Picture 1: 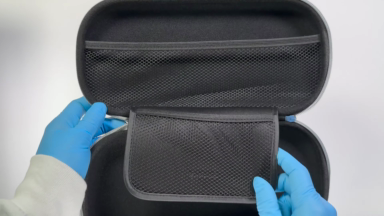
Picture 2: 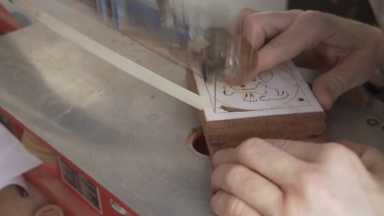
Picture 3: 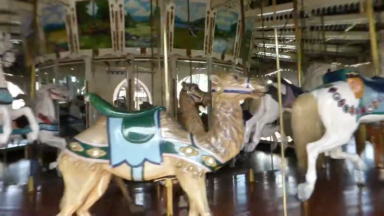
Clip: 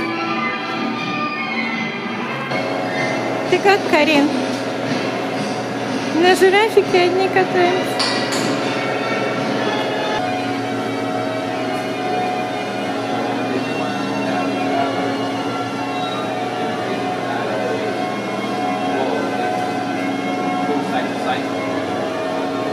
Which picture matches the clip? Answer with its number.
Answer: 3